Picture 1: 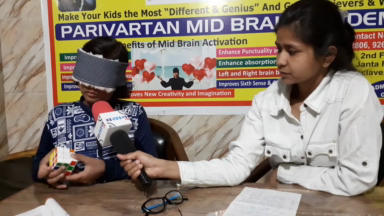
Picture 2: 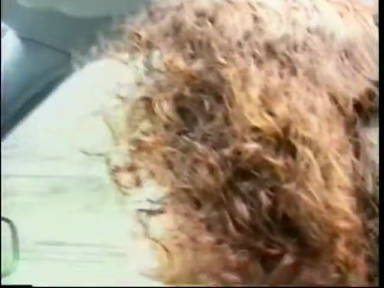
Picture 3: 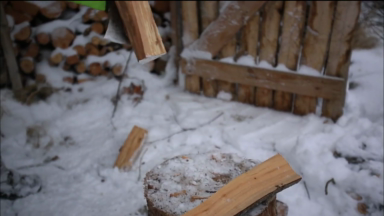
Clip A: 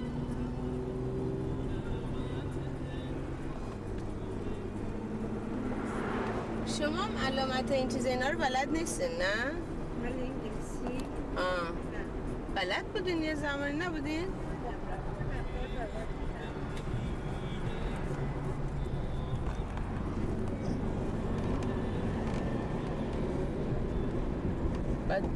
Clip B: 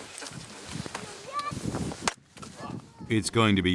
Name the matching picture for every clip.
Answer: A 2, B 3